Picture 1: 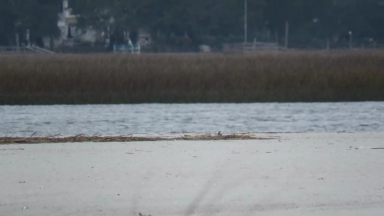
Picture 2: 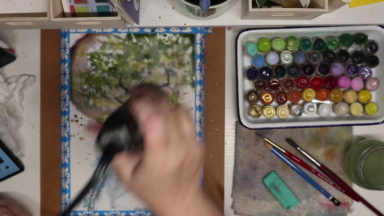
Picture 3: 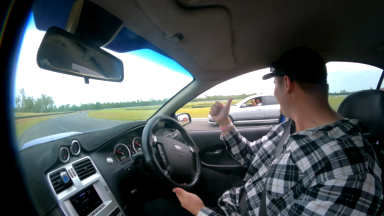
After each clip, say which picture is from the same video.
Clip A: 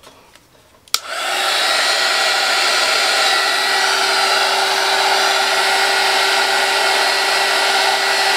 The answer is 2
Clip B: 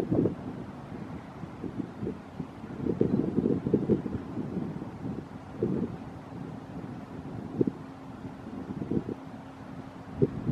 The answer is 1